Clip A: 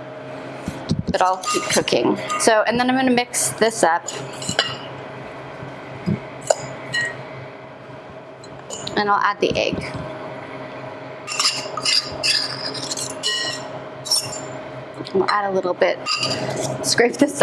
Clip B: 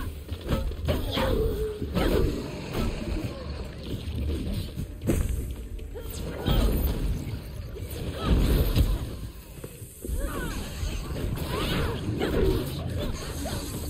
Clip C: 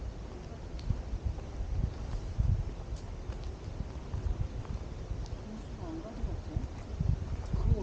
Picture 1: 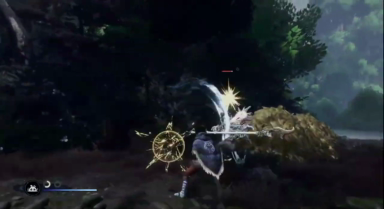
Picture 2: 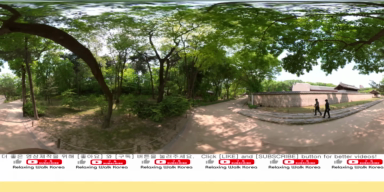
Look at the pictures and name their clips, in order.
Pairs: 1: B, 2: C